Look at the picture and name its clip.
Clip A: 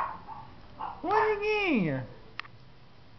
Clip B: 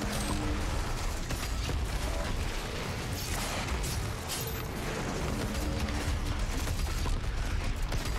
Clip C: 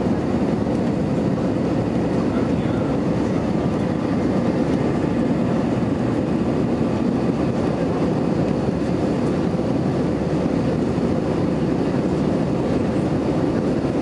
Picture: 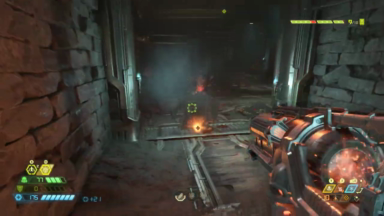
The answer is B